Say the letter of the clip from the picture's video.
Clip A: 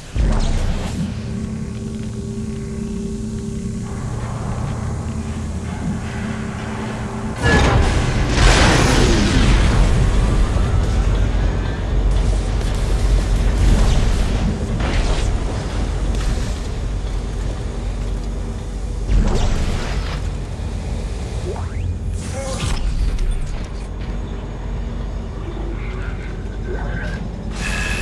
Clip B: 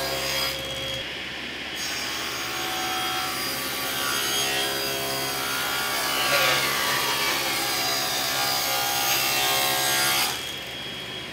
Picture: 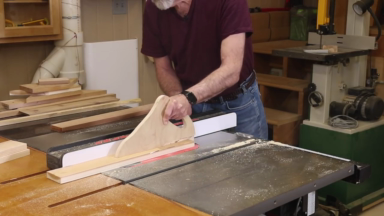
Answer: B